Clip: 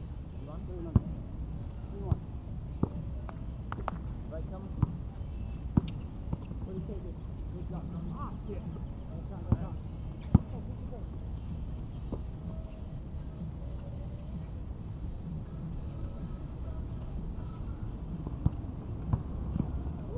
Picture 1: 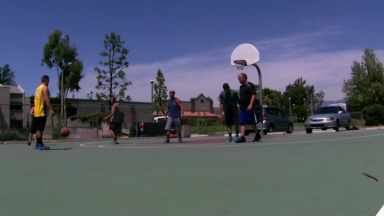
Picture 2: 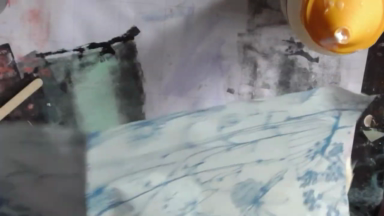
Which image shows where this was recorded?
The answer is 1